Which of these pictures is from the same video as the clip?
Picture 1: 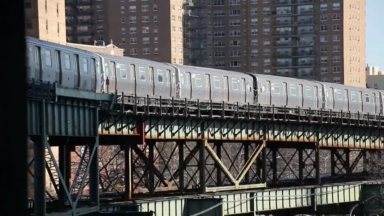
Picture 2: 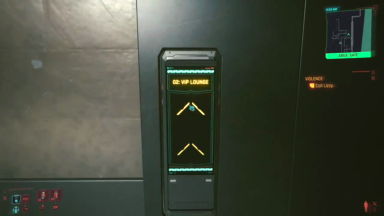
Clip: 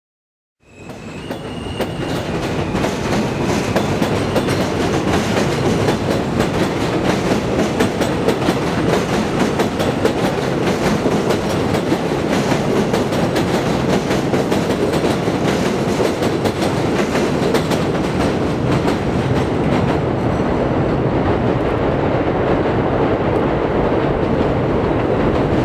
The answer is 1